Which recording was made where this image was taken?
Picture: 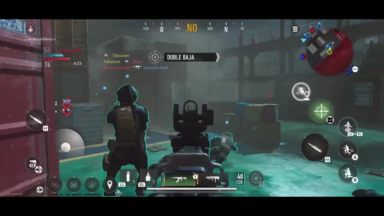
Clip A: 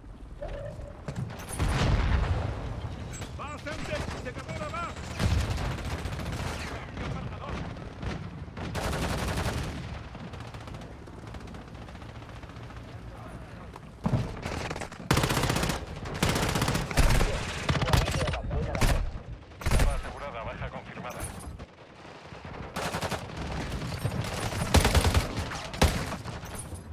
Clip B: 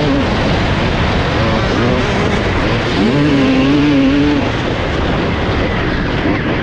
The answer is A